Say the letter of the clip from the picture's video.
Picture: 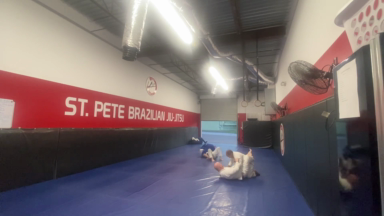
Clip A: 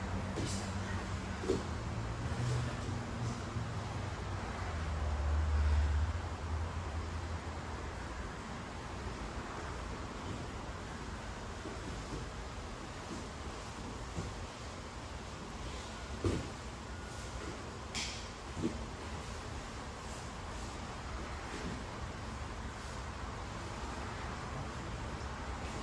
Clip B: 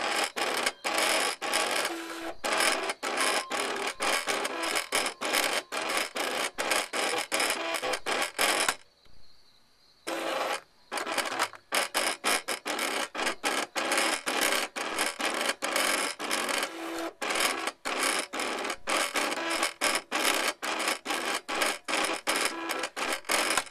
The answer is A